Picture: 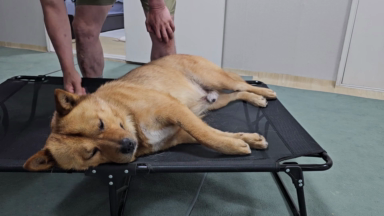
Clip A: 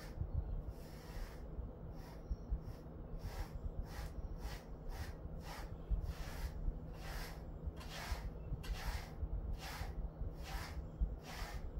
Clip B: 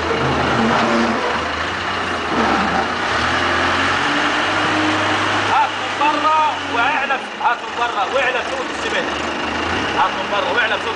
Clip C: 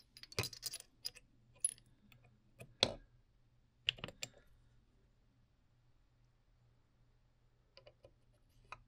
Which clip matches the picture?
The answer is A